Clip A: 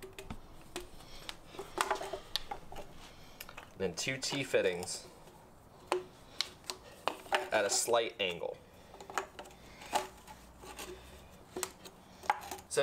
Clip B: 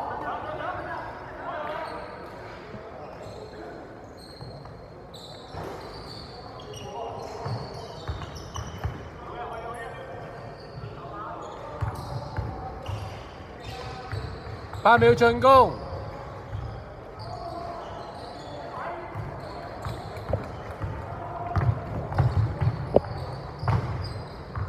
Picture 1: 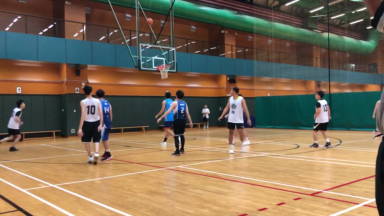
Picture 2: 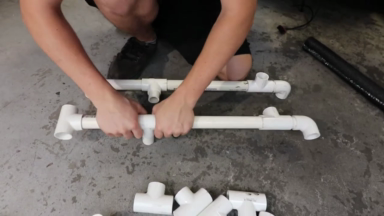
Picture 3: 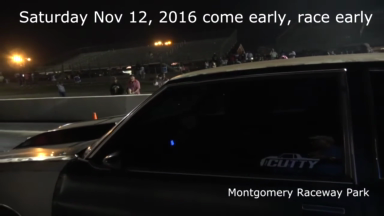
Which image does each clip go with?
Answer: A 2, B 1